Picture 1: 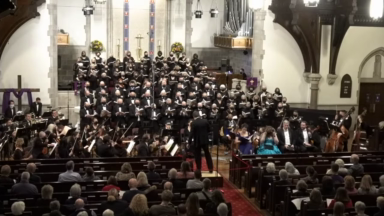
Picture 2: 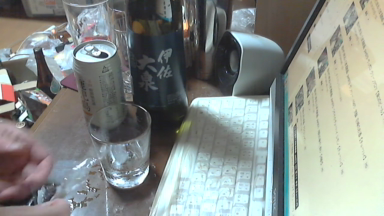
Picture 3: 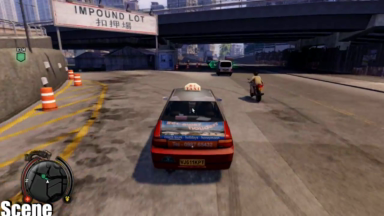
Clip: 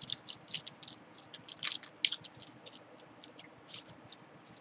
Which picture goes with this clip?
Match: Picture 2